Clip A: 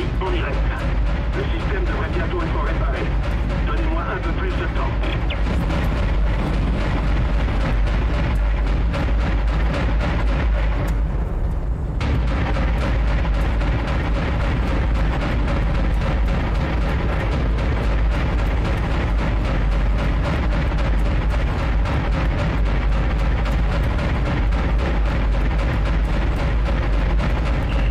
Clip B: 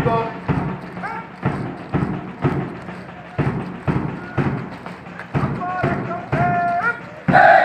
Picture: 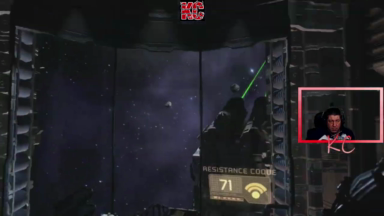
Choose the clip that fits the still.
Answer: A